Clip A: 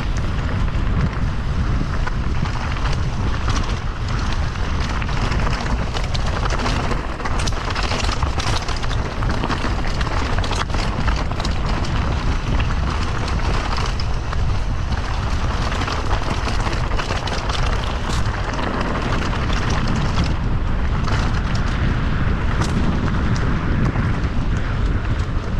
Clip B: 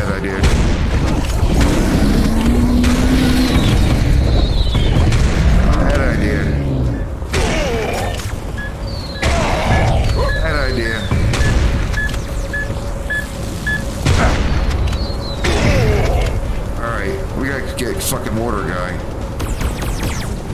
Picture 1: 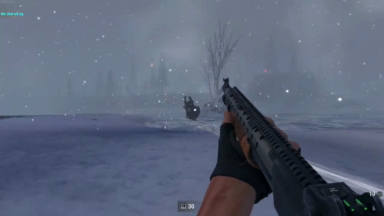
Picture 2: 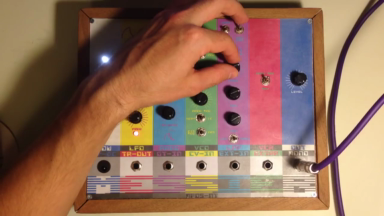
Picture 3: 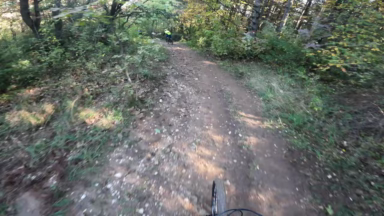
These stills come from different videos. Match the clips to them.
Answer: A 3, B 1